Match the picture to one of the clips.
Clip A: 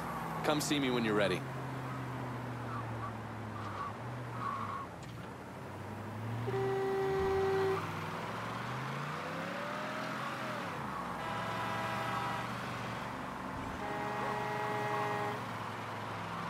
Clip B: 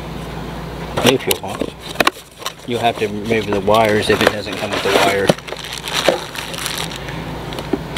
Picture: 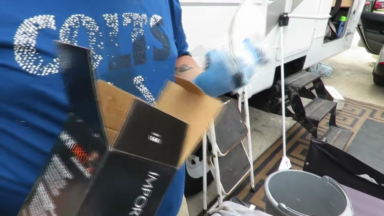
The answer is B